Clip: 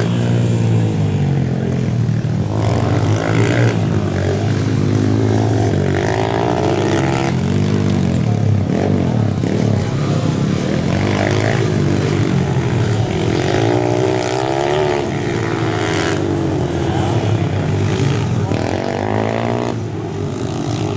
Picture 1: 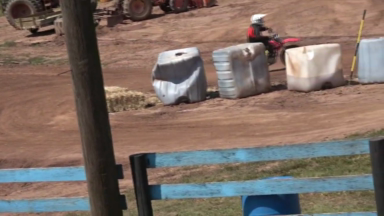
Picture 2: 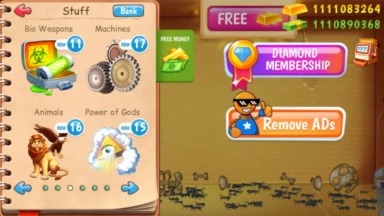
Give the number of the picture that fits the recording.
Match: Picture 1